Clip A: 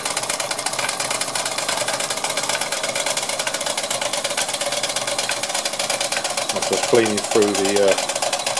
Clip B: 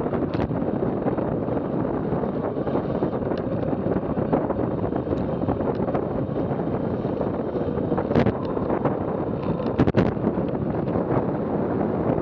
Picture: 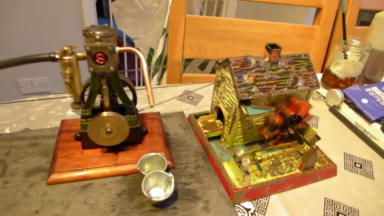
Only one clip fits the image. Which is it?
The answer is A